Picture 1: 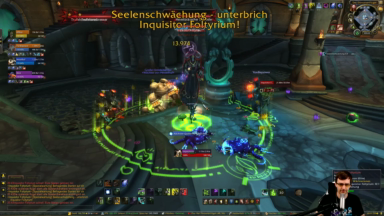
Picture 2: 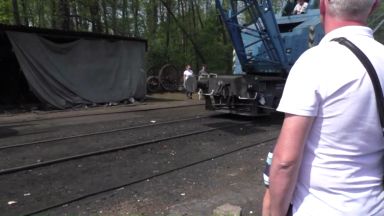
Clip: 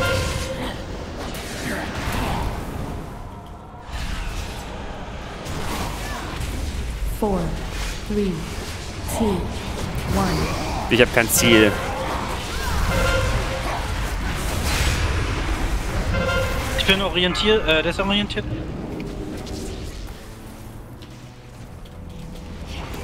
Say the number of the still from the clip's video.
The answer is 1